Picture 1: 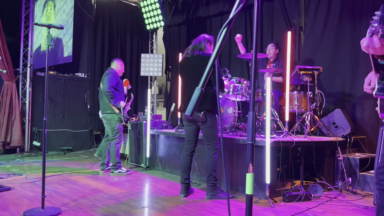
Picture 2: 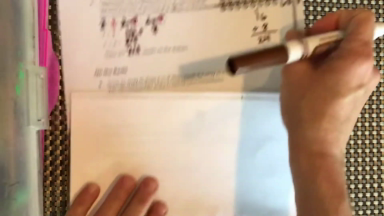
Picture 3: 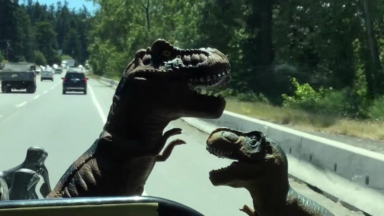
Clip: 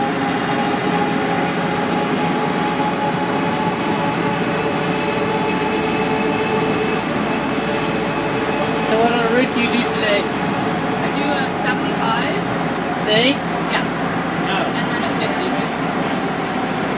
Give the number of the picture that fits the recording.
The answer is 3